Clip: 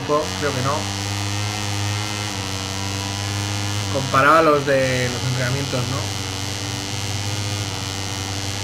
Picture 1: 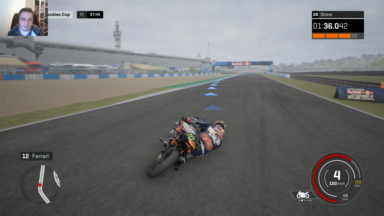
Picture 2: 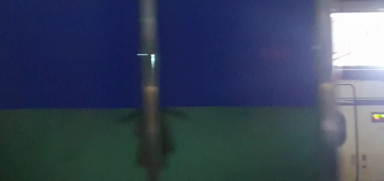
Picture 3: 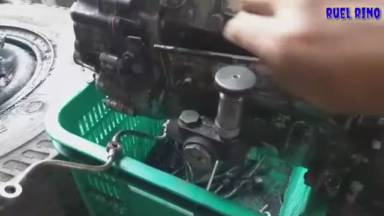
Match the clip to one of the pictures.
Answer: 1